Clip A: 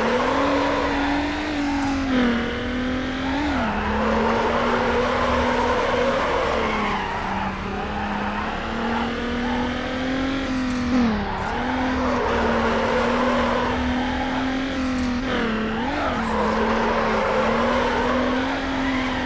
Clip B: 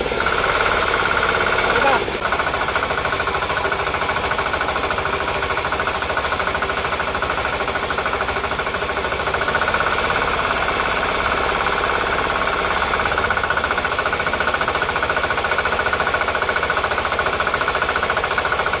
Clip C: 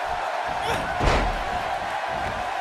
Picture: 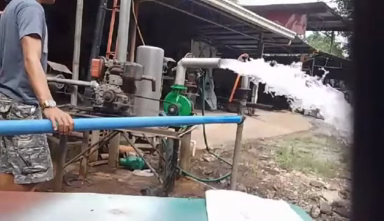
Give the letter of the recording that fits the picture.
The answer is B